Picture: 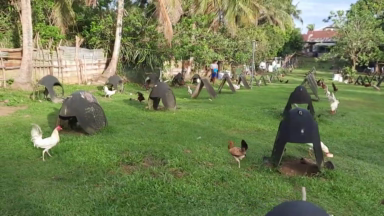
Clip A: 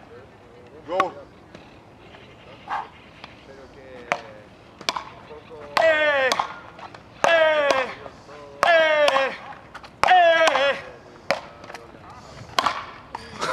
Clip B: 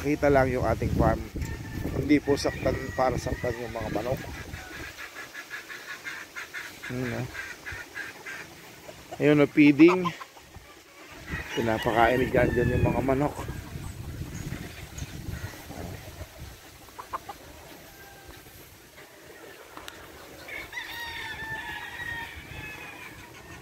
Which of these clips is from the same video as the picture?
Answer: B